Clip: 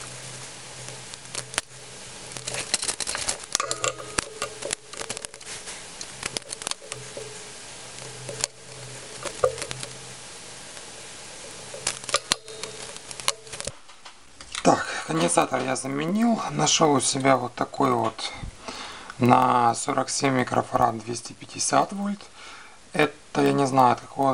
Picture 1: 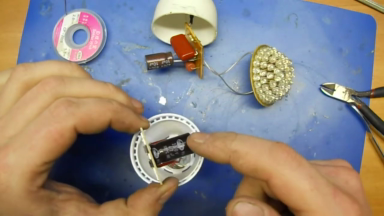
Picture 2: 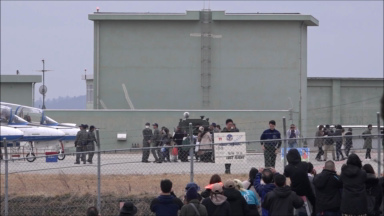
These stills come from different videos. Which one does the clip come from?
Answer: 1